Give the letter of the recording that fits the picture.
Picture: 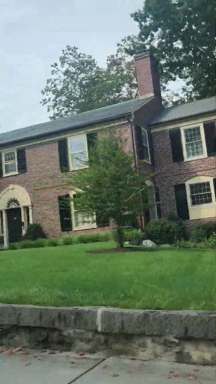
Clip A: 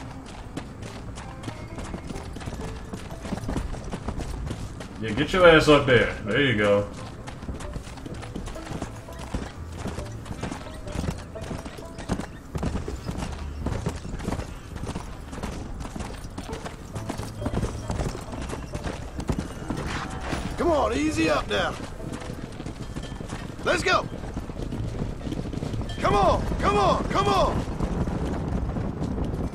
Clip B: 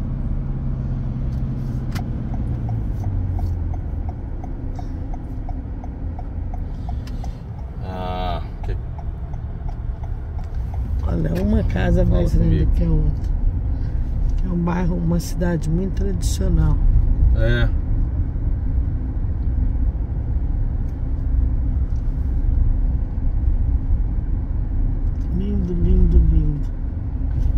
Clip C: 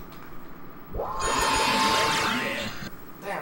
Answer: B